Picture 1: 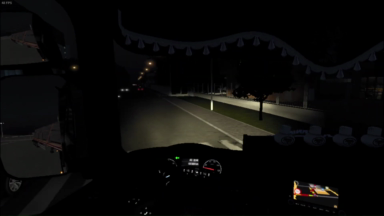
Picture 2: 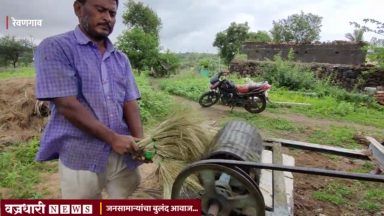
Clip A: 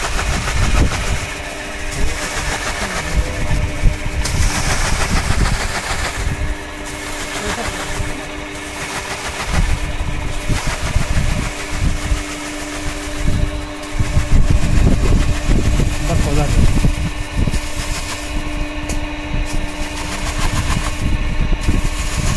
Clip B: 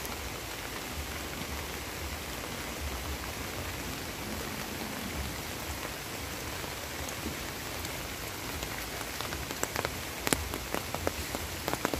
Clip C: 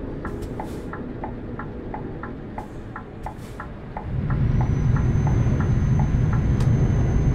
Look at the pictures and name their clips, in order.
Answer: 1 C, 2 A